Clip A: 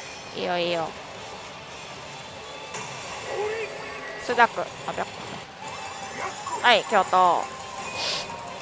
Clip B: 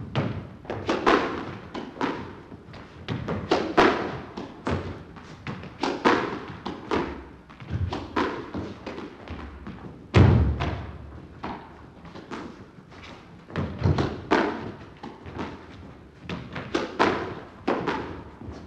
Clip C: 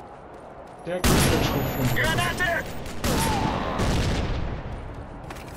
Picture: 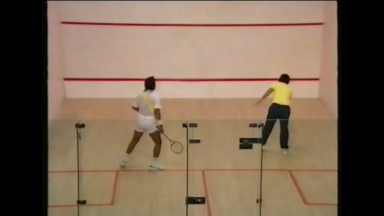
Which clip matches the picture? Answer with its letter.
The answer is B